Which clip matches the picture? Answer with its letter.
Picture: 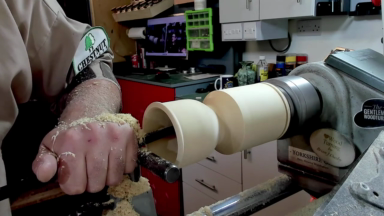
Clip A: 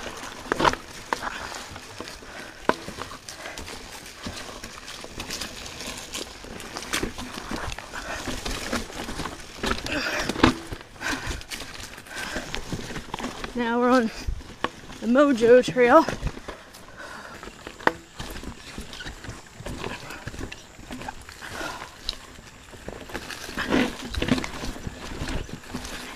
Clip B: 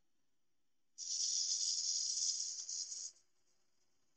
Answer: B